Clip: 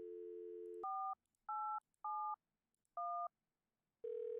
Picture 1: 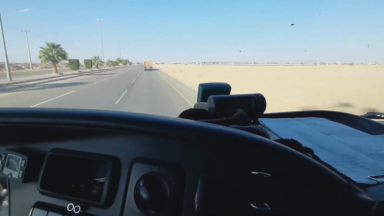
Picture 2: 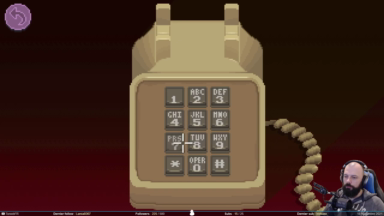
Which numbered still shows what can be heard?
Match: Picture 2